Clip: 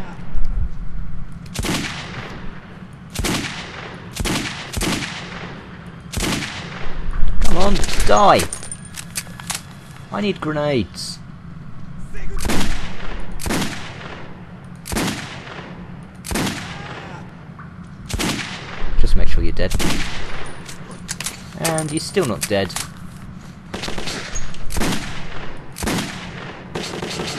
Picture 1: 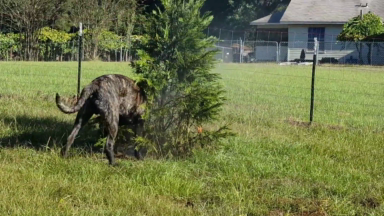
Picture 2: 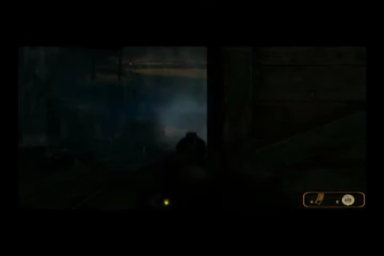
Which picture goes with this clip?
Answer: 2